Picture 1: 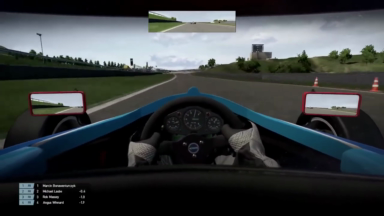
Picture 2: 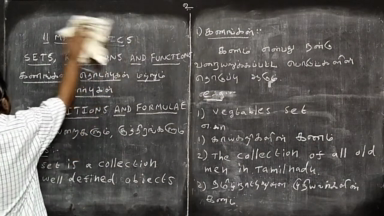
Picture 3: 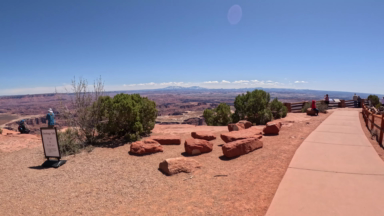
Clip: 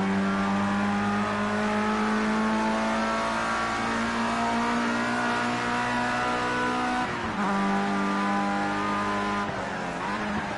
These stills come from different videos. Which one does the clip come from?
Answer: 1